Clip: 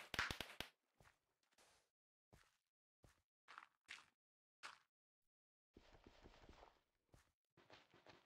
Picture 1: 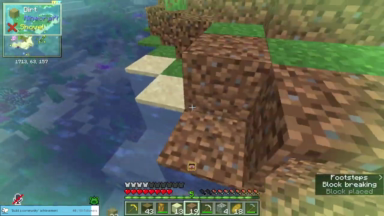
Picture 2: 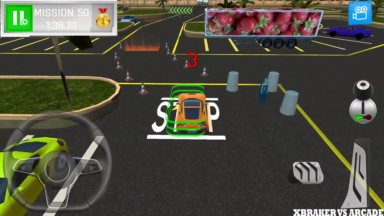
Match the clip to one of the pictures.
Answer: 1